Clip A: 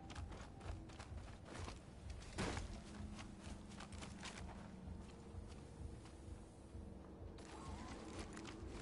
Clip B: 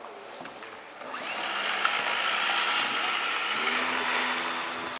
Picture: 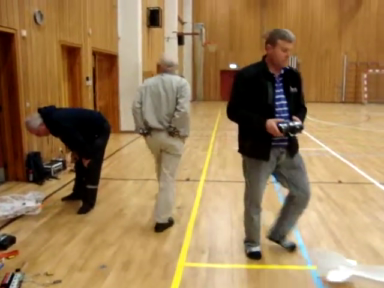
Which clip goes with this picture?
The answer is B